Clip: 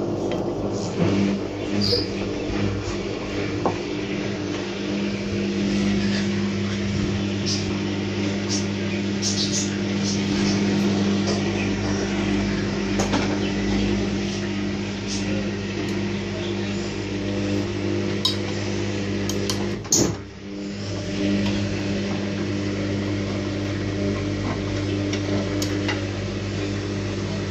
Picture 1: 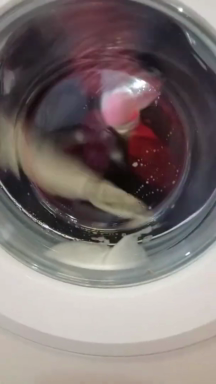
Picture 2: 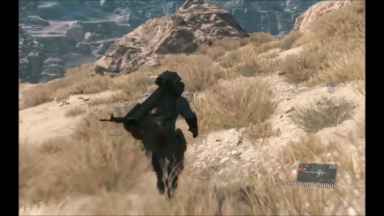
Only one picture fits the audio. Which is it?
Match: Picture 1